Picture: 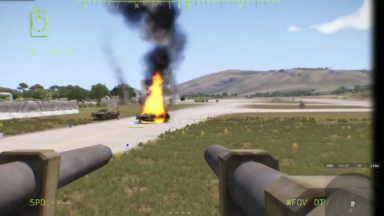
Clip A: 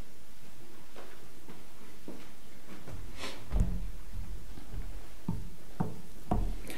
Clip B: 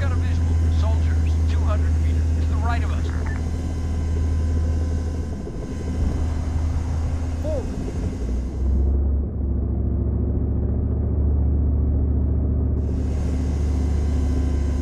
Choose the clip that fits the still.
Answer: B